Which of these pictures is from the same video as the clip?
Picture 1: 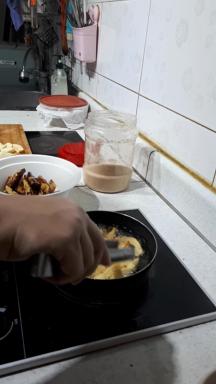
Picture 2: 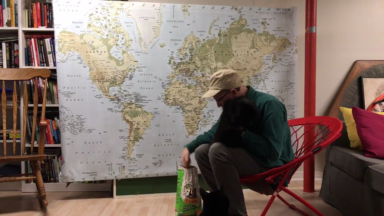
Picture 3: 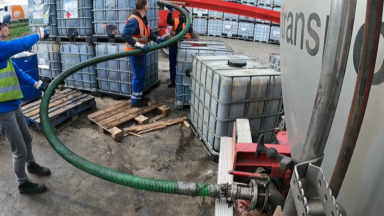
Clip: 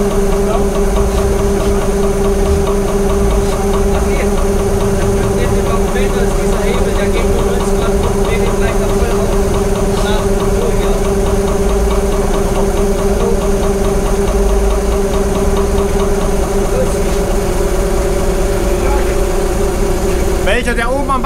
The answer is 3